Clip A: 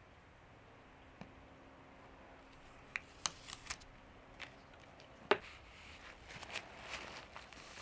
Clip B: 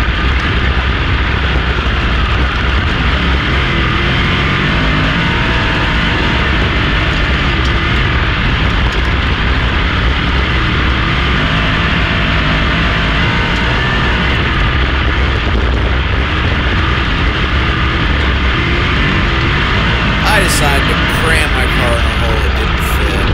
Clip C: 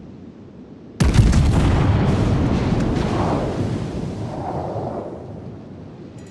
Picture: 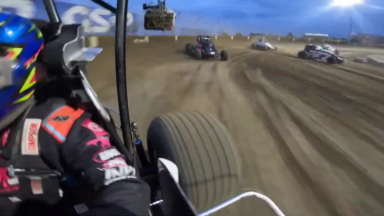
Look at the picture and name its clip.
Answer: B